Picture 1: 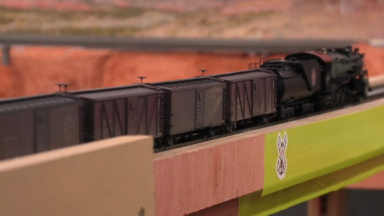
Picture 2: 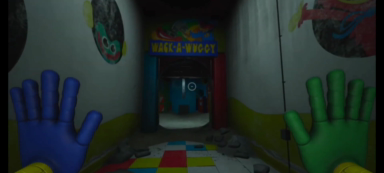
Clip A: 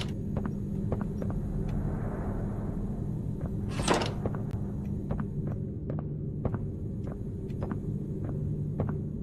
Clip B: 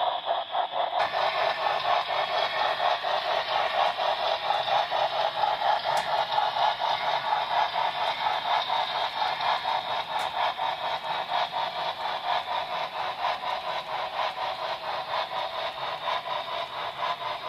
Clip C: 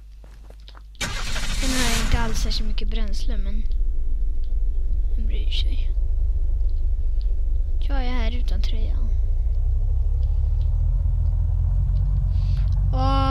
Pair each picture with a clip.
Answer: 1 B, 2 A